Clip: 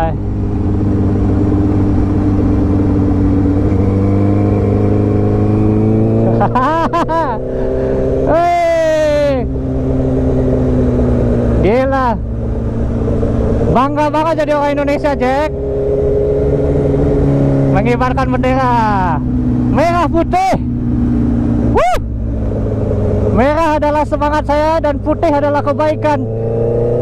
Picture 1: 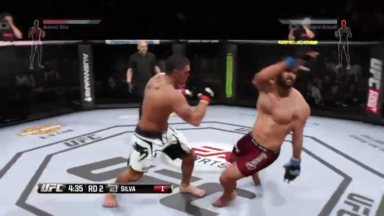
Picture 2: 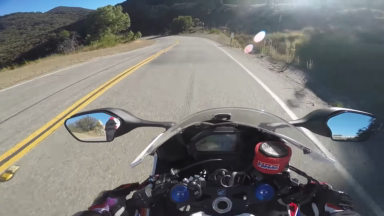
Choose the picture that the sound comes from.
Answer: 2